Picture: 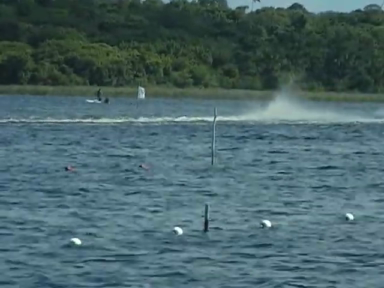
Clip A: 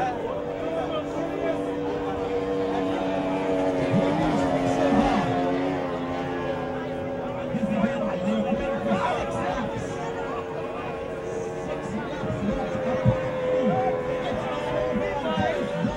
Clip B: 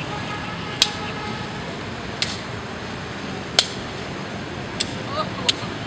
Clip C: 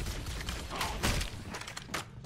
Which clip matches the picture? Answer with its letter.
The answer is A